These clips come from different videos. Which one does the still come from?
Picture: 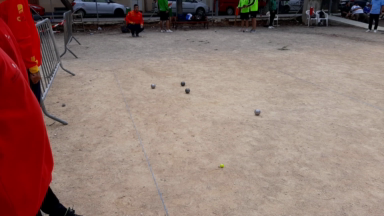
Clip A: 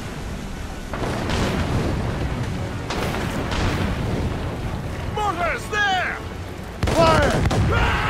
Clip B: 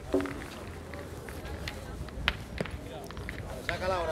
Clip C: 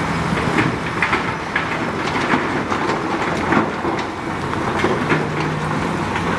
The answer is B